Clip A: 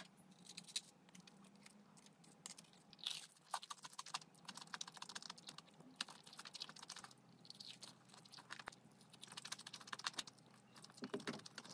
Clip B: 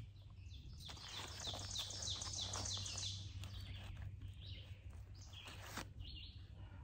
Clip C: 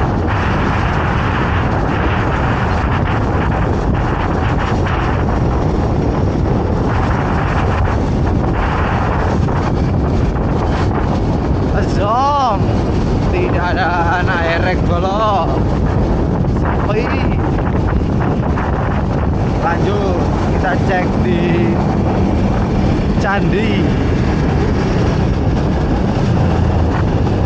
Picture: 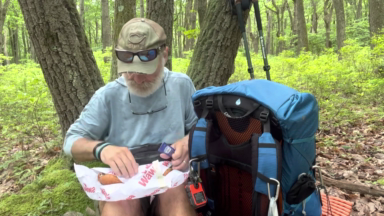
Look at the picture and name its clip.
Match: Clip B